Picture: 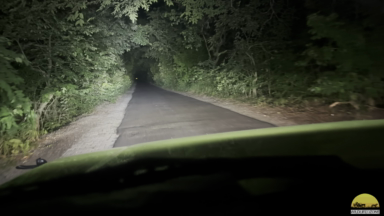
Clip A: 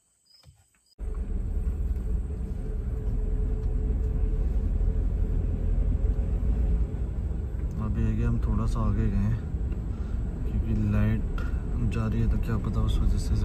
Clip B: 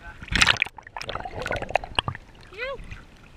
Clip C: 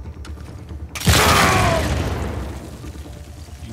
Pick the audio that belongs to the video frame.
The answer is A